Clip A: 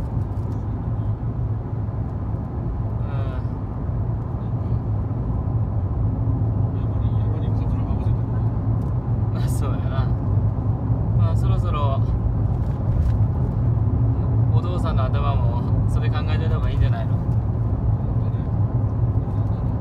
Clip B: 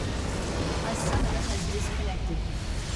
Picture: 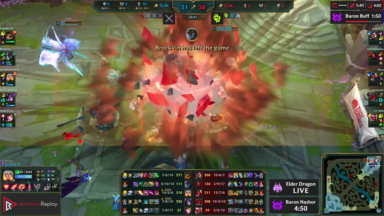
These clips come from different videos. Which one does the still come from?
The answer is B